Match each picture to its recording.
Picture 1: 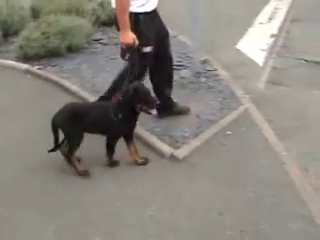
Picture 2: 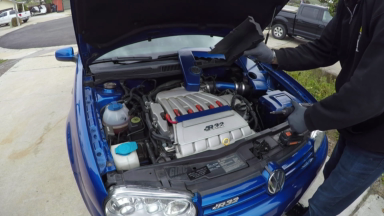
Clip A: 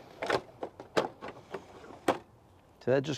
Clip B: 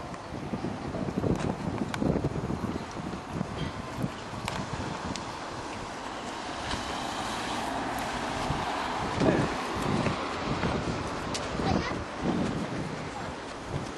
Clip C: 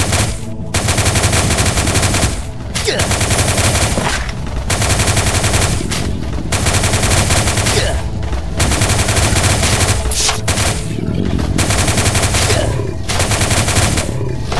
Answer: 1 B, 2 A